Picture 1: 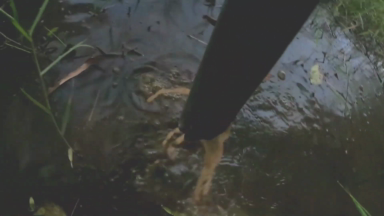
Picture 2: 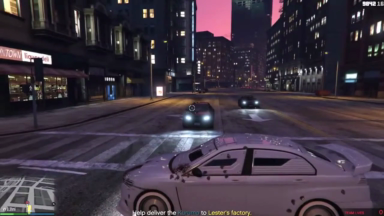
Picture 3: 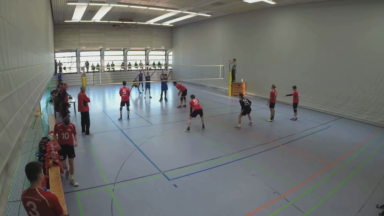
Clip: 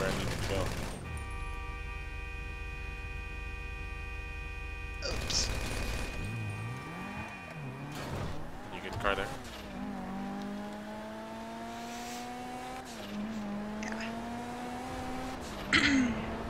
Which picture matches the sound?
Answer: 2